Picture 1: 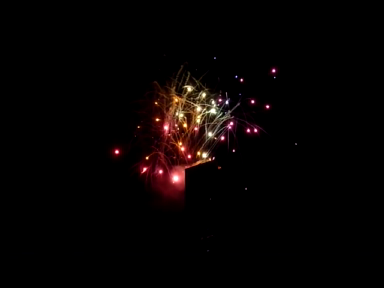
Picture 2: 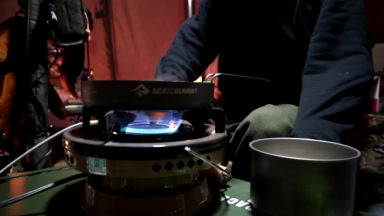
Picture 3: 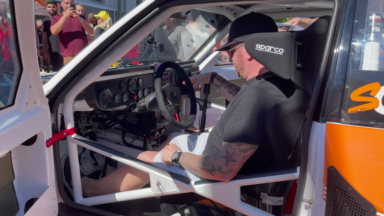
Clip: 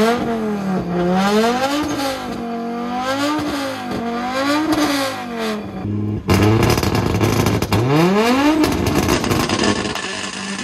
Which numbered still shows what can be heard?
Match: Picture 3